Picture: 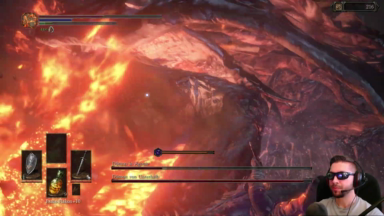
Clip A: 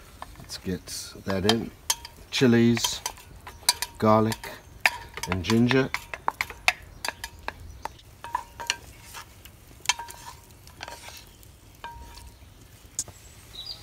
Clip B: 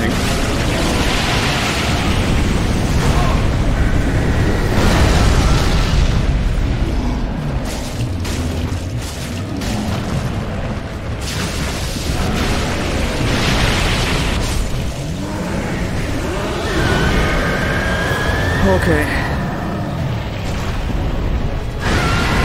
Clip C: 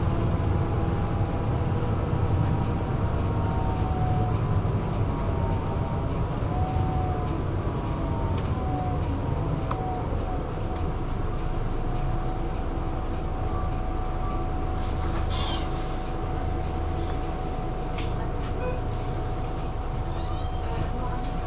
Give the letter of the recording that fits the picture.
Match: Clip B